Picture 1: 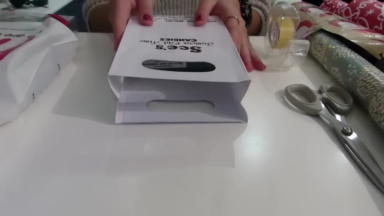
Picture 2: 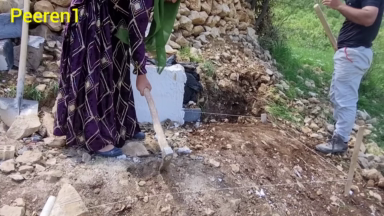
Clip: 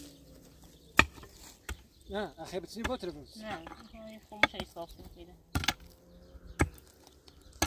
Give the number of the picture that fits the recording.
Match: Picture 2